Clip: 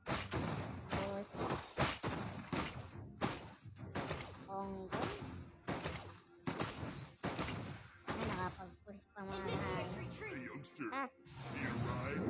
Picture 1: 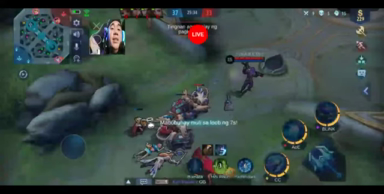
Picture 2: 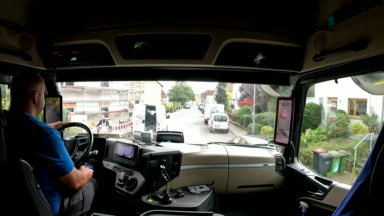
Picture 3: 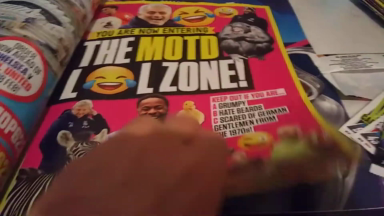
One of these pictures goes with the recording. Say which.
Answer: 1